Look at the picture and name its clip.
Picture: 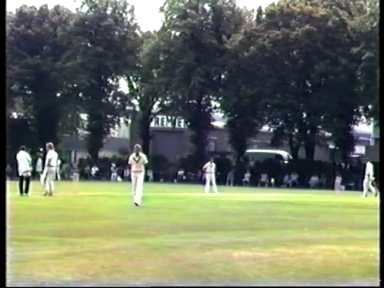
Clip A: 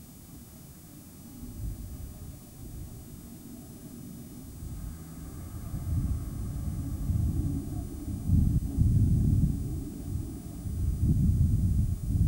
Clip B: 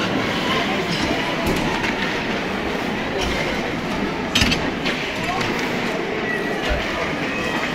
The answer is A